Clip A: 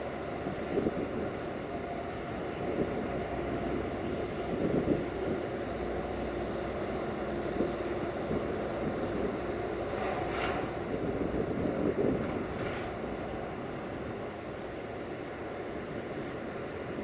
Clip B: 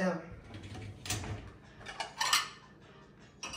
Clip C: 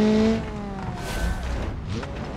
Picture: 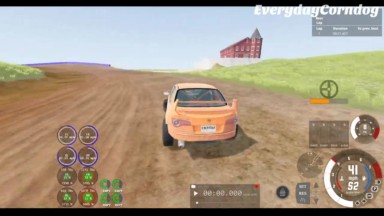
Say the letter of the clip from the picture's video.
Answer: C